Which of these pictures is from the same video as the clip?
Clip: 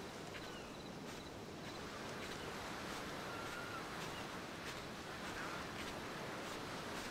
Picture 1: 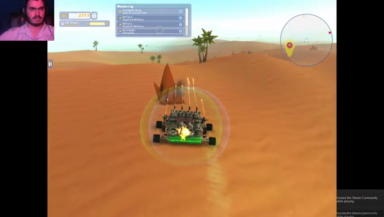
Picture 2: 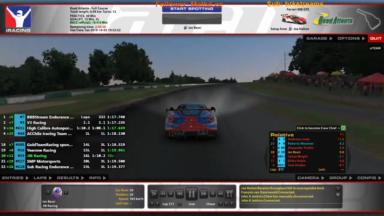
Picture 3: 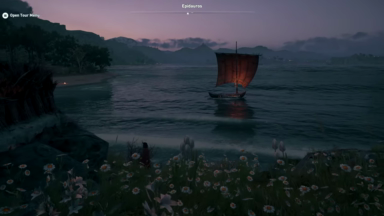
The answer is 3